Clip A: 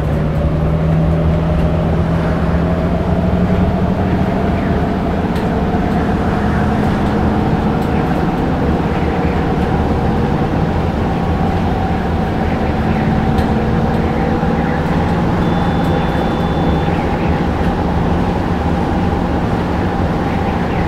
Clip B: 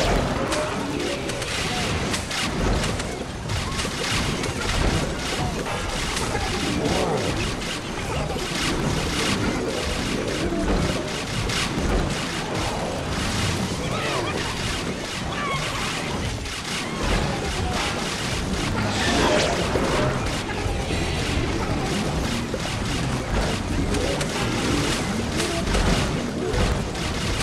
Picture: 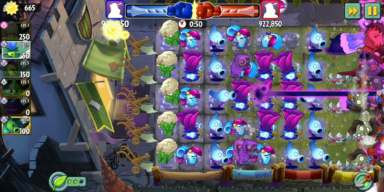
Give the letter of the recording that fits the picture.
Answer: B